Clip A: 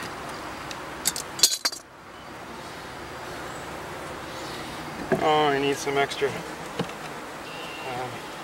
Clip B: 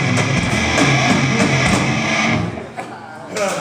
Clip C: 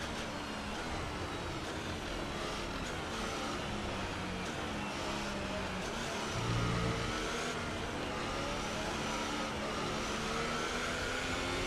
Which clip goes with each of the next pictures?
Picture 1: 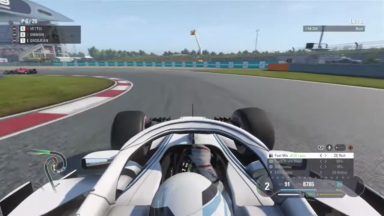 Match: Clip C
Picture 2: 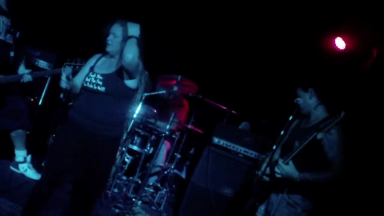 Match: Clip B